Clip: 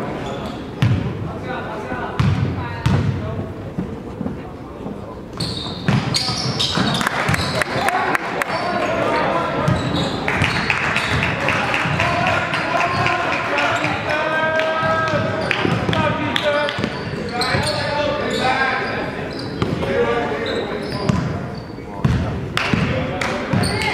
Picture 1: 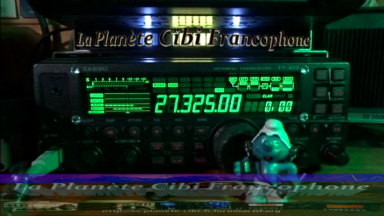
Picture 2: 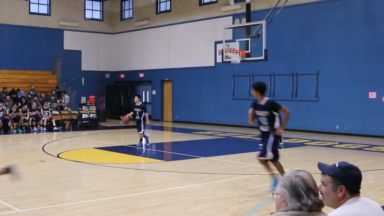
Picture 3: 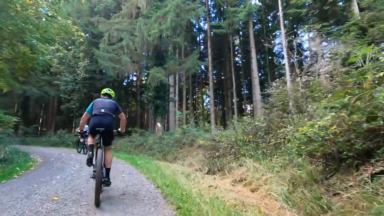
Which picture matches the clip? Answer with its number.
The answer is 2